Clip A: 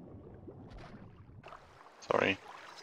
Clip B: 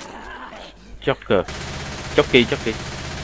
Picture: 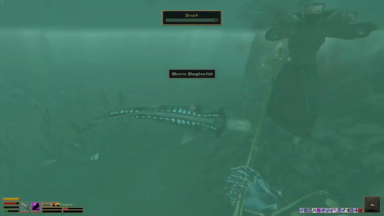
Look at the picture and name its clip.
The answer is A